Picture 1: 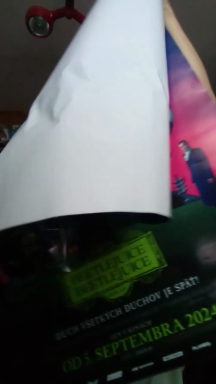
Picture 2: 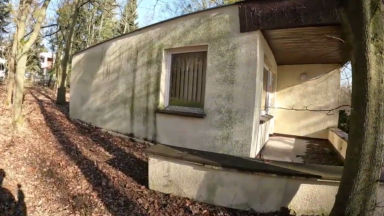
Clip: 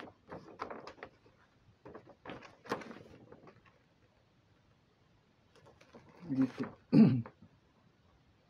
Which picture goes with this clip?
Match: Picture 1